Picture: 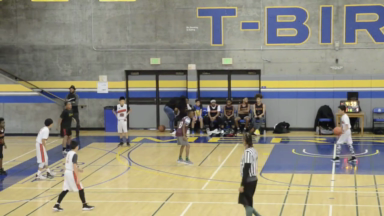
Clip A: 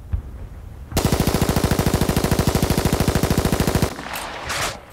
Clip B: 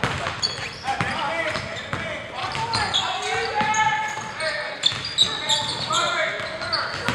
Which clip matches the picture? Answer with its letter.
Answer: B